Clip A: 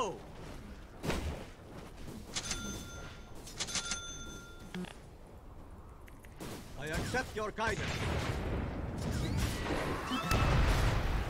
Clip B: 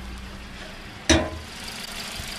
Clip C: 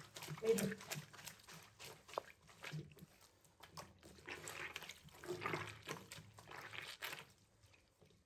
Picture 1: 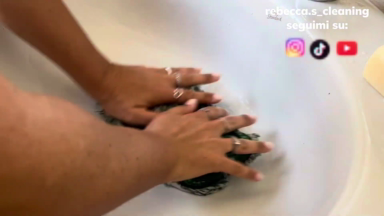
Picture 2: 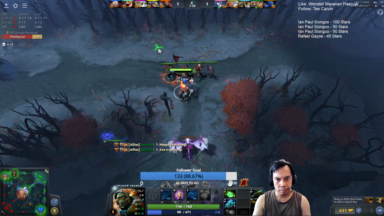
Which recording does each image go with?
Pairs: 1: C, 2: A